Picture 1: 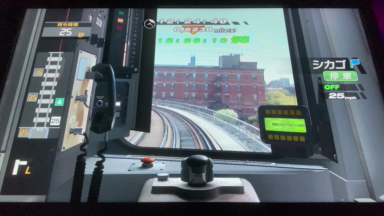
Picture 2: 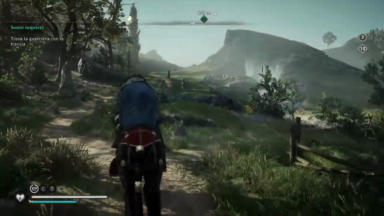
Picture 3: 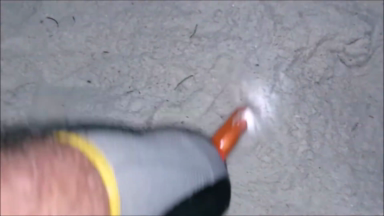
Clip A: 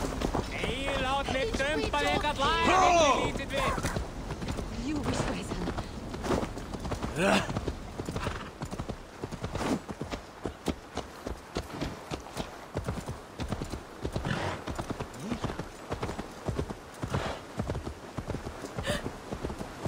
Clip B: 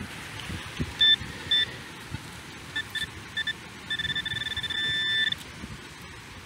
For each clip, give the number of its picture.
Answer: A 2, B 3